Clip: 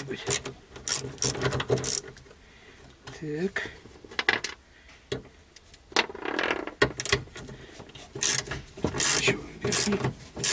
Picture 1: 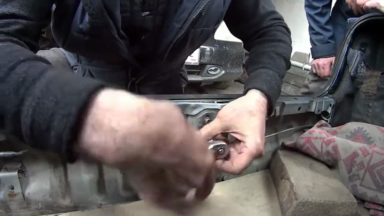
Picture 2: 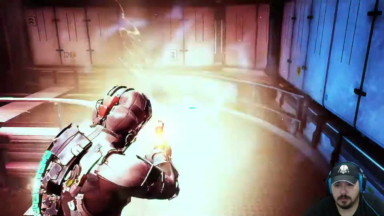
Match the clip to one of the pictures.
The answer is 1